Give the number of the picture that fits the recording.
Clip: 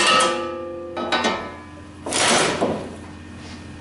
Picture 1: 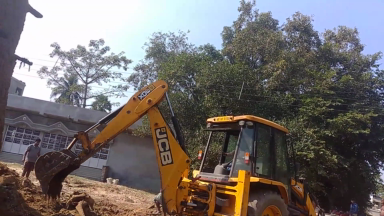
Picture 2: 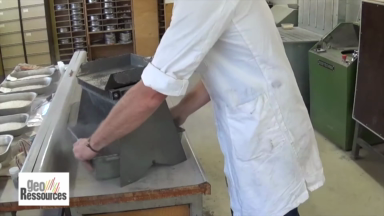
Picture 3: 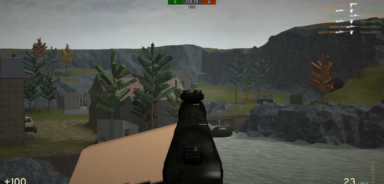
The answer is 2